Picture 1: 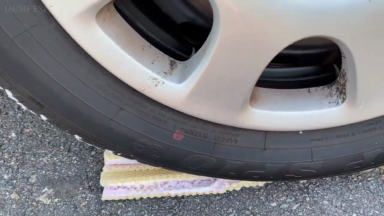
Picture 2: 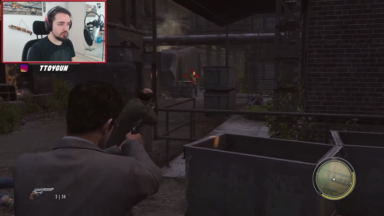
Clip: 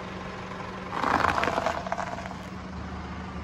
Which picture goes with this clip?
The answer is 1